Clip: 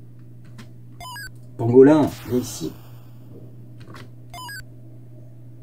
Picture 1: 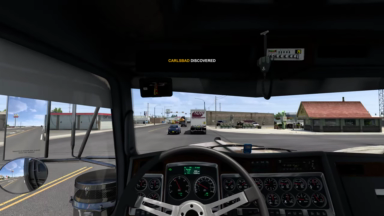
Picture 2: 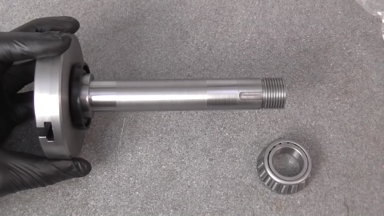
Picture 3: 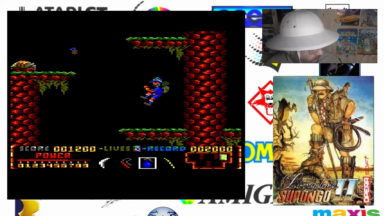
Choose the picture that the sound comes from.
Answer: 3